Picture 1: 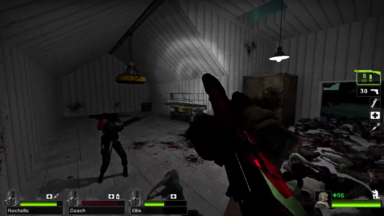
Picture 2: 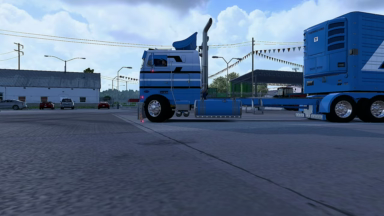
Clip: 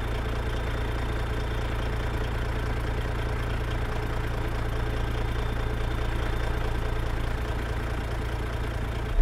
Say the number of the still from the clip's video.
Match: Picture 2